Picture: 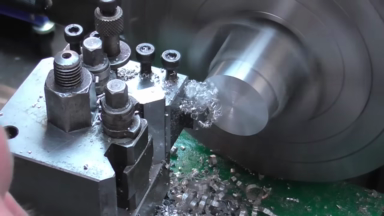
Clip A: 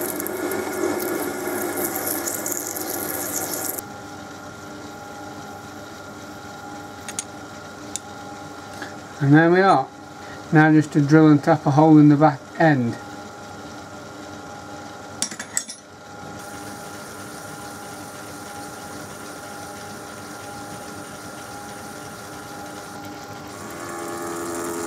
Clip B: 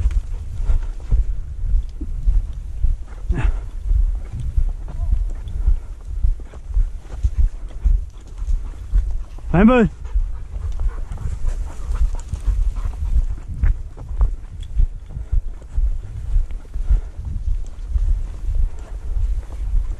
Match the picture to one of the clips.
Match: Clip A